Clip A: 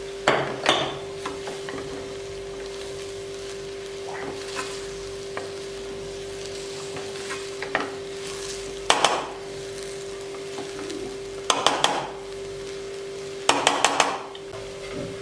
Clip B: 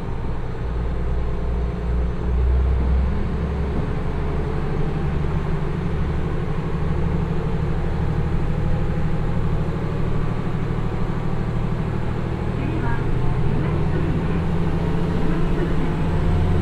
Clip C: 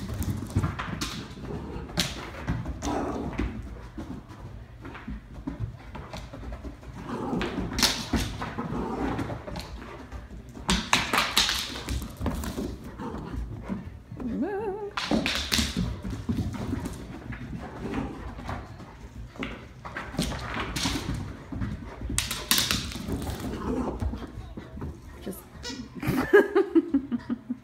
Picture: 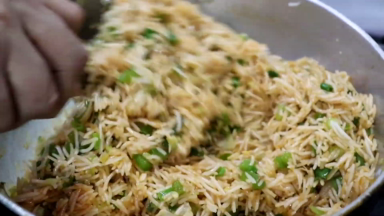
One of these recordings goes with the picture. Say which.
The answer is A